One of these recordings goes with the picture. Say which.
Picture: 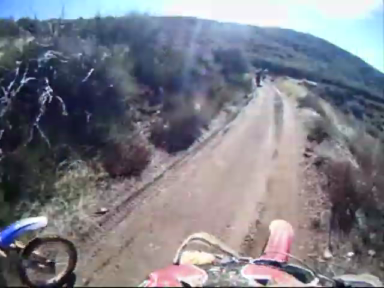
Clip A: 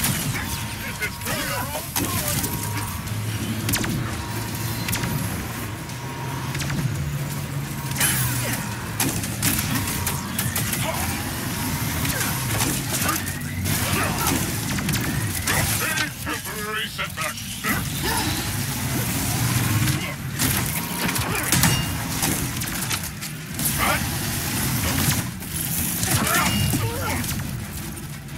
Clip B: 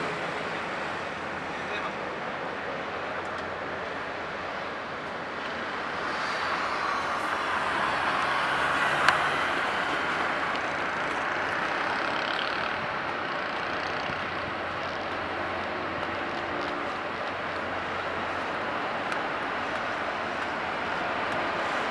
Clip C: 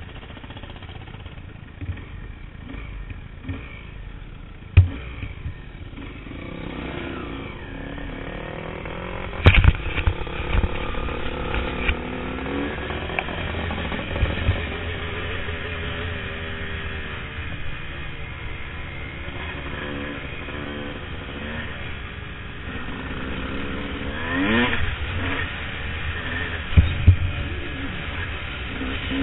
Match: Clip C